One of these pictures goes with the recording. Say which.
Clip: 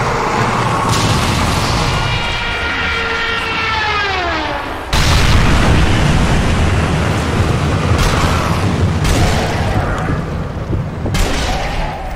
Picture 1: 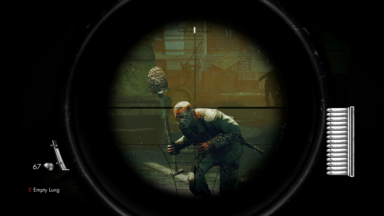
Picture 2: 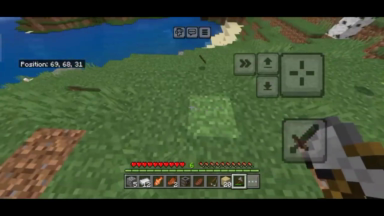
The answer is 1